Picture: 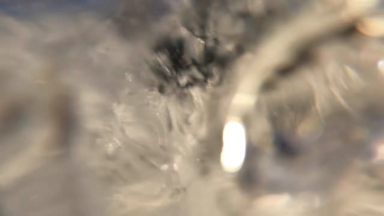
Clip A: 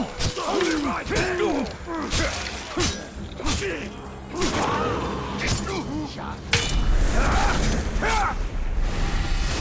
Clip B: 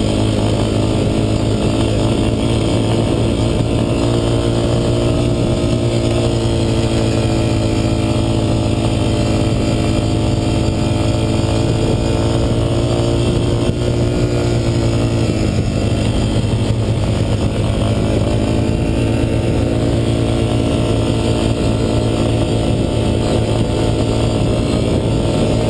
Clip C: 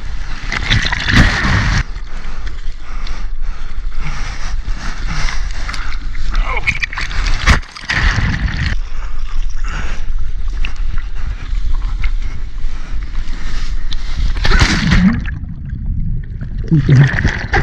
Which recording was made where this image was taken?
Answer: C